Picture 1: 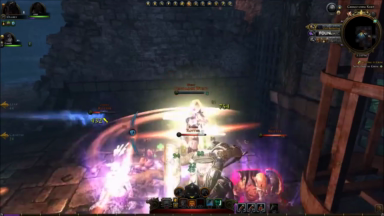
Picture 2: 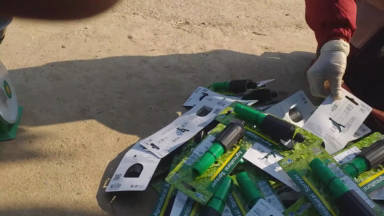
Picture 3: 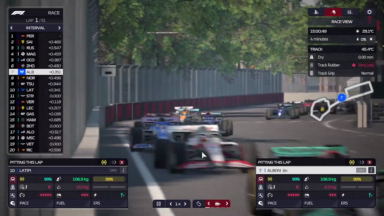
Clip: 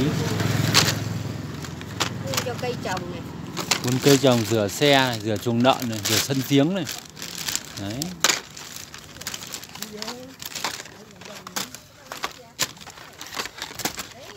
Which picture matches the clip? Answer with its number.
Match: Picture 2